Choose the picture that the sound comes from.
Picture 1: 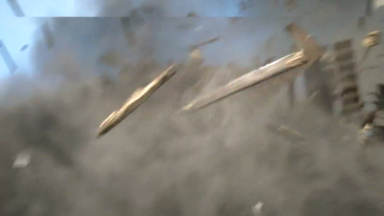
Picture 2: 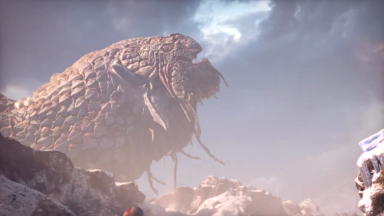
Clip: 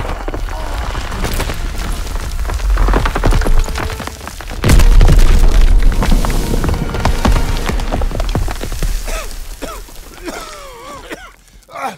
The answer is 1